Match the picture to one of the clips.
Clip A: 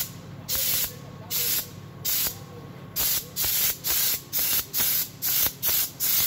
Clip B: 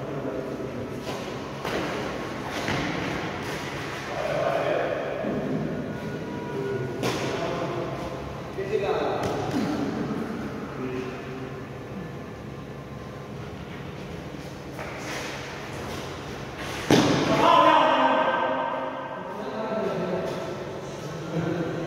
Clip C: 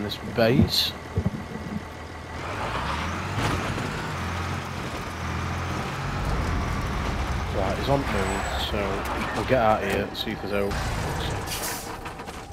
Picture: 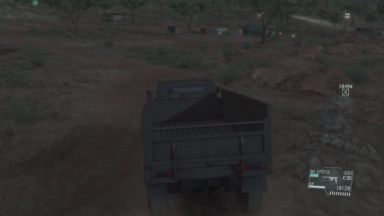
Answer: C